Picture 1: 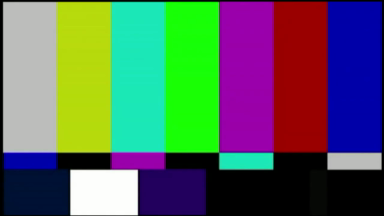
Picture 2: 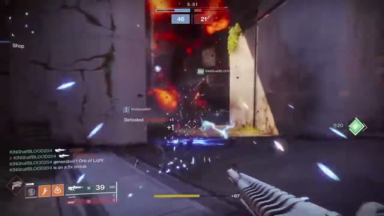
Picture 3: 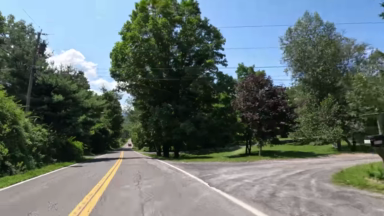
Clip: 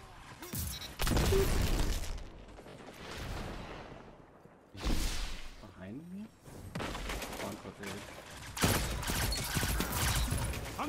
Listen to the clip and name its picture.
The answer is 2